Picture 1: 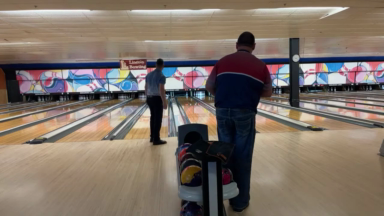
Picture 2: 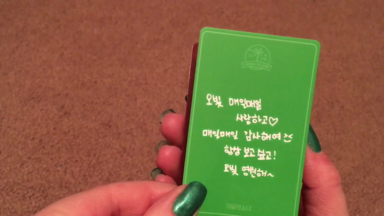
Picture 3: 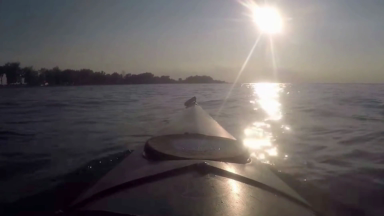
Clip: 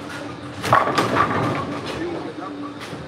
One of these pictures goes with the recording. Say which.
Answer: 1